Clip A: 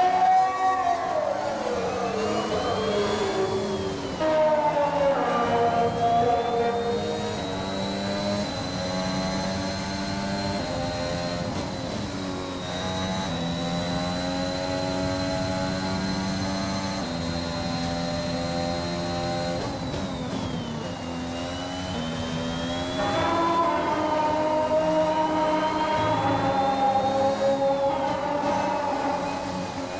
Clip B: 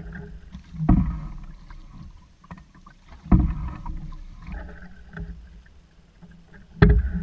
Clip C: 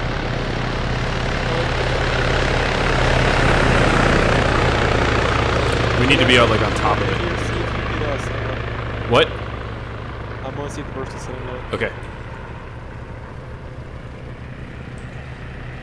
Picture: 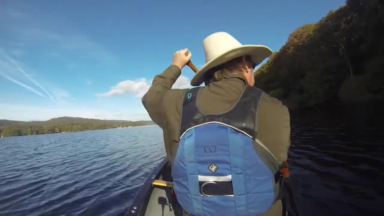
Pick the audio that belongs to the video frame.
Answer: B